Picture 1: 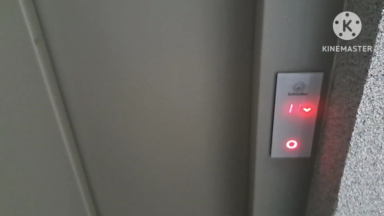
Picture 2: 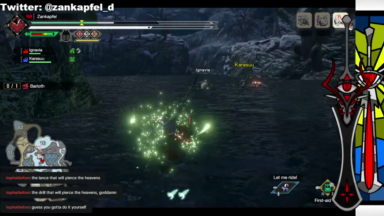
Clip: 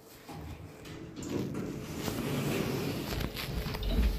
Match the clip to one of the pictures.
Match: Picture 1